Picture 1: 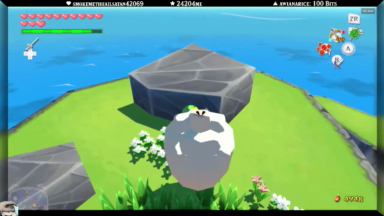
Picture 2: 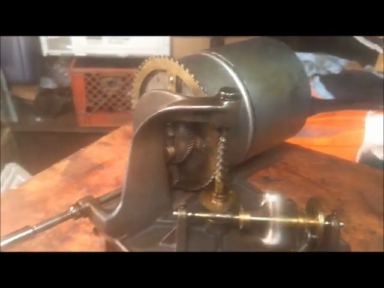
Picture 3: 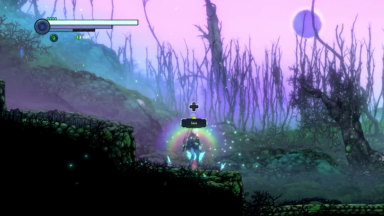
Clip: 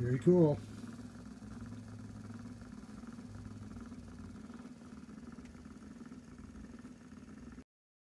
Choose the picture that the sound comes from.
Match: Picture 2